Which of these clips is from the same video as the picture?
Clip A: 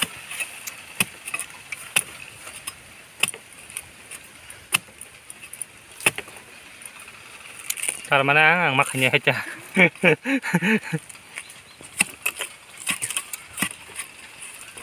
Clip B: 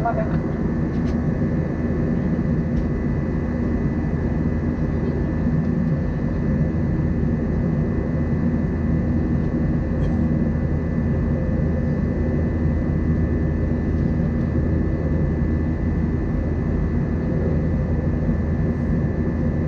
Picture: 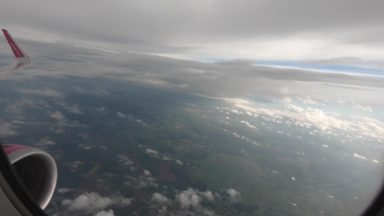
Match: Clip B